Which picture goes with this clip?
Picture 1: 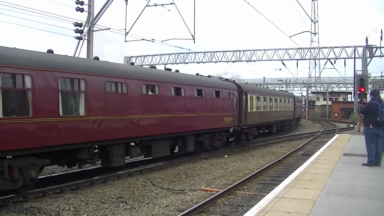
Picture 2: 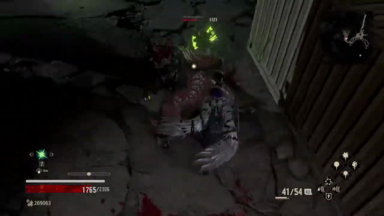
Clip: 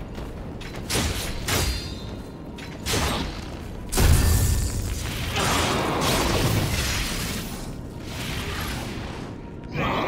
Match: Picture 2